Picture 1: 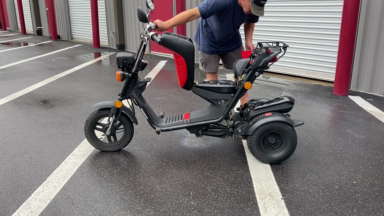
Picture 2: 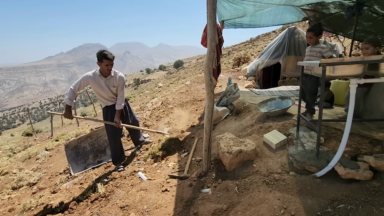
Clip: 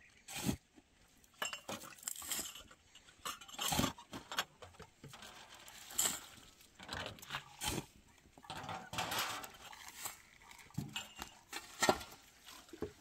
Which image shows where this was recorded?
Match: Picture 2